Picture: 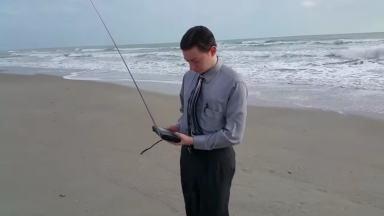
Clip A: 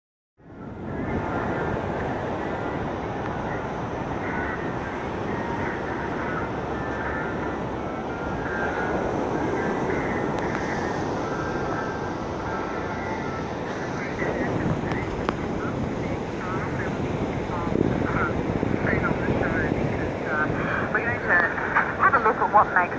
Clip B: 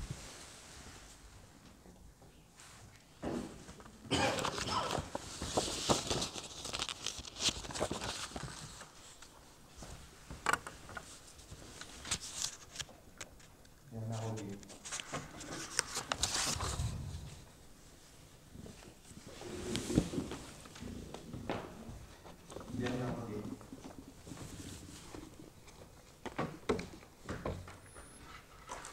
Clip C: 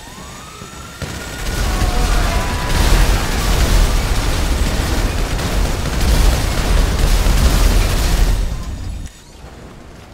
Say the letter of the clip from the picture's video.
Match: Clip A